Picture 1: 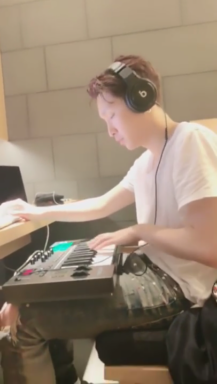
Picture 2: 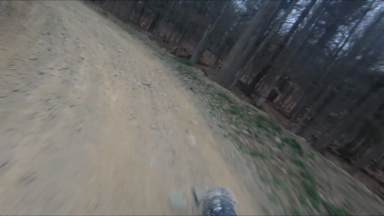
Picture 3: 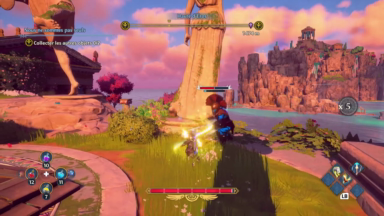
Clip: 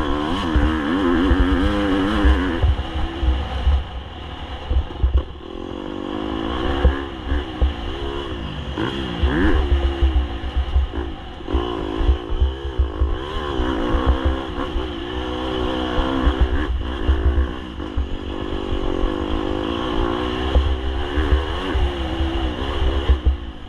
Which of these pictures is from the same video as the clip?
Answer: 2